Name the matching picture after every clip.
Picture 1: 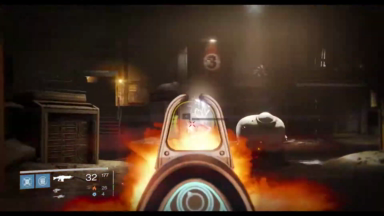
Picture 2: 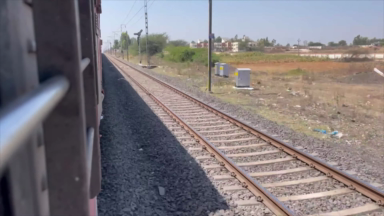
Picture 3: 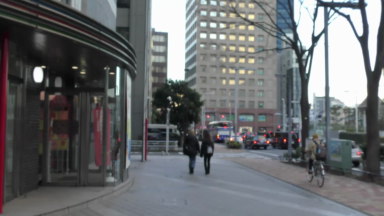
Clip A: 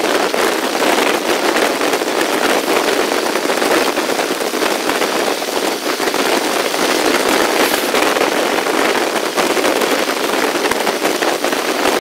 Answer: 2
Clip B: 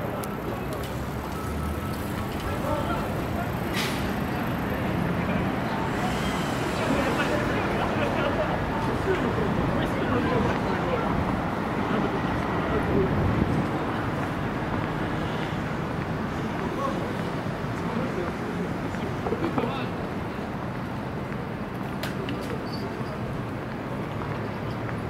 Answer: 3